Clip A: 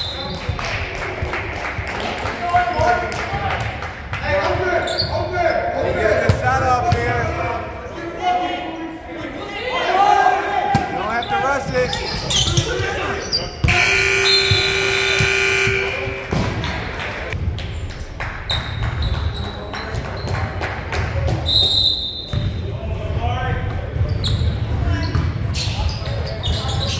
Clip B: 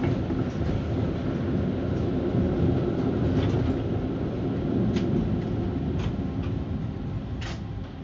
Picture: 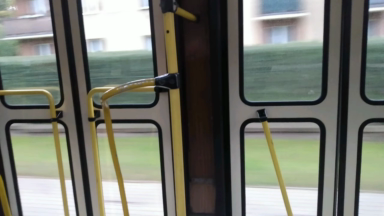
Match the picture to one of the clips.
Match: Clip B